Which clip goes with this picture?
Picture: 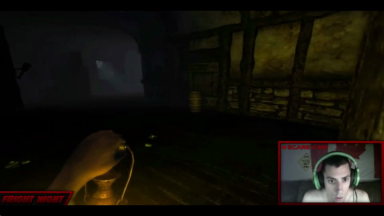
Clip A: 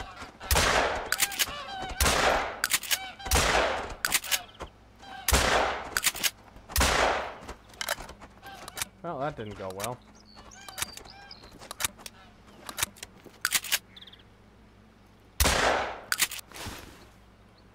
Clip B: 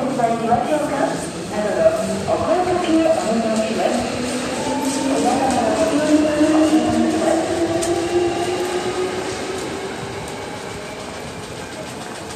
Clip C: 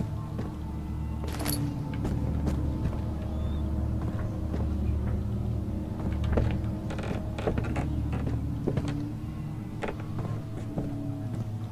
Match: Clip C